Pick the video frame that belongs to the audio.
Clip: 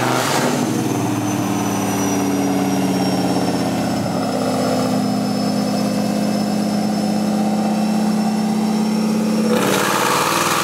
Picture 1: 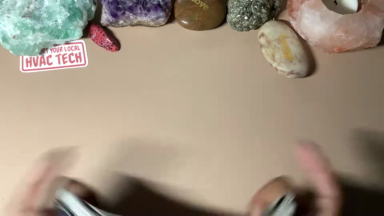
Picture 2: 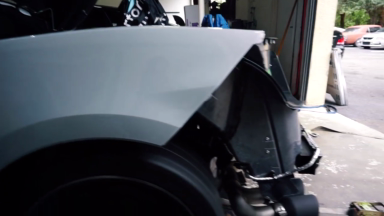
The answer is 2